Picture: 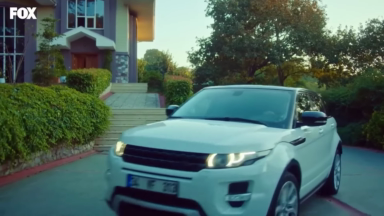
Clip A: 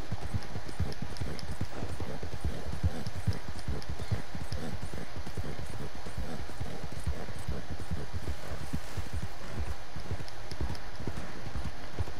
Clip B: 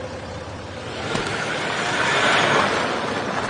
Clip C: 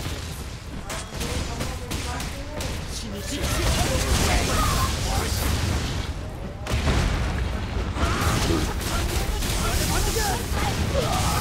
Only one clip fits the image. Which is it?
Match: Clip B